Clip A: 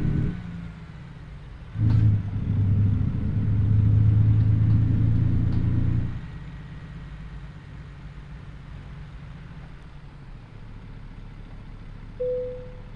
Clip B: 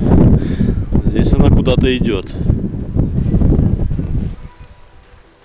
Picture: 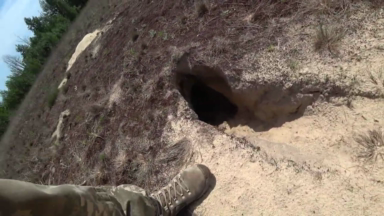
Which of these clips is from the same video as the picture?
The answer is B